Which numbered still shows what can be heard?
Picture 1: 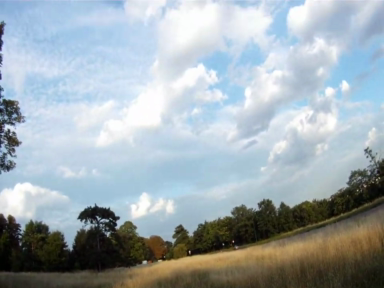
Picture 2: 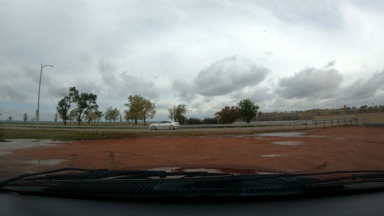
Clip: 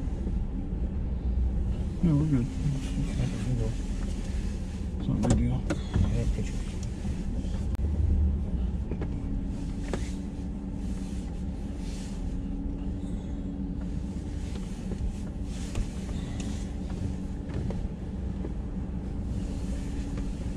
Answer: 2